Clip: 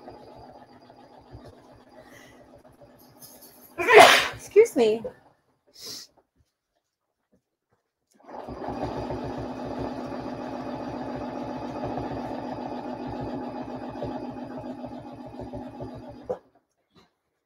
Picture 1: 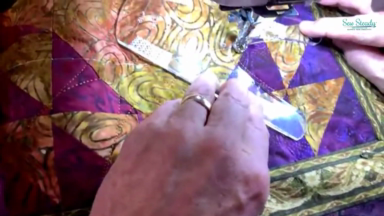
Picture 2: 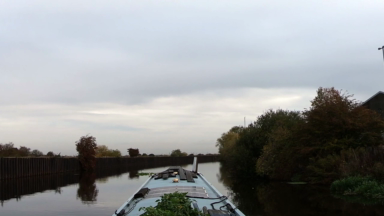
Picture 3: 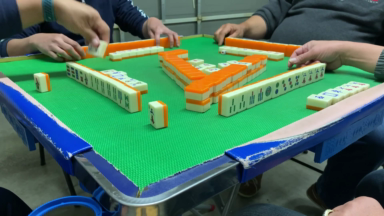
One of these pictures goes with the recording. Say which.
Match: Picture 1